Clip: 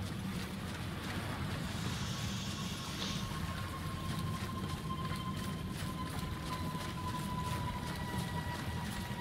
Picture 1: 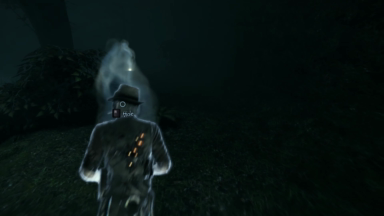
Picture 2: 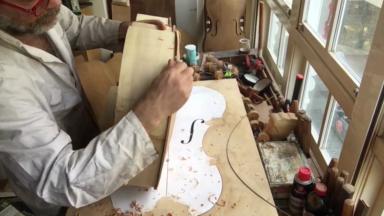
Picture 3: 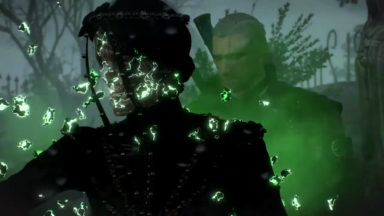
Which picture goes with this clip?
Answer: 1